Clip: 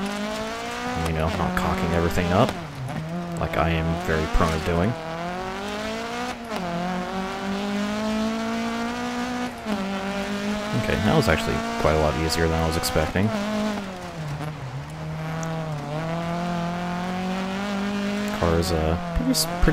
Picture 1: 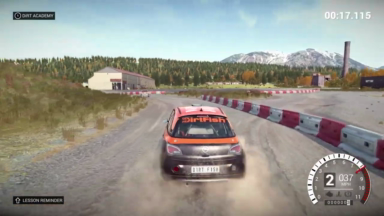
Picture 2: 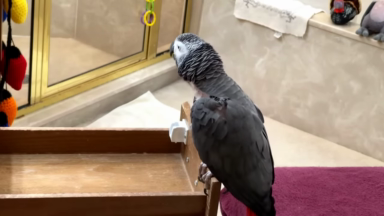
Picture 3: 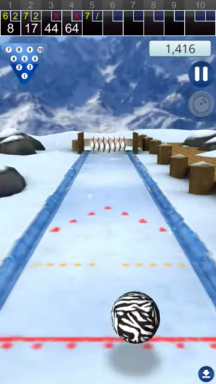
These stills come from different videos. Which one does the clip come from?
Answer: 1